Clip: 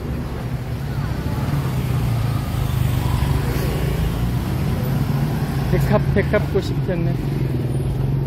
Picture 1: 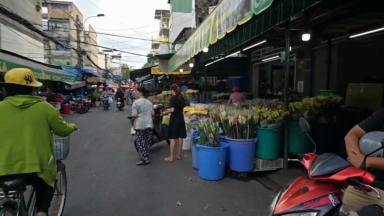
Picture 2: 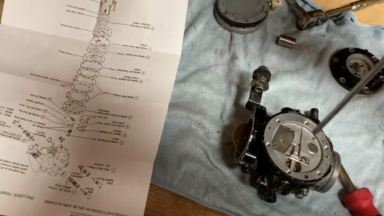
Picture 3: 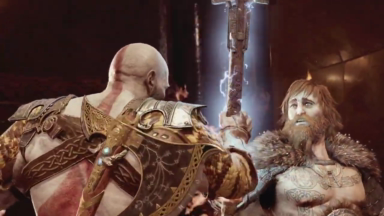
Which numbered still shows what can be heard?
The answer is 1